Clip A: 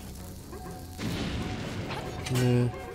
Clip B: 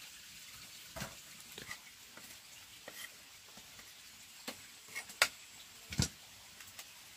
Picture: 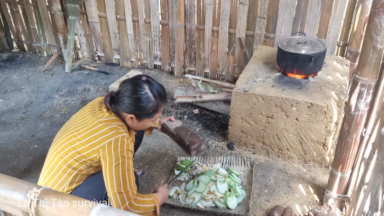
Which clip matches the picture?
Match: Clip B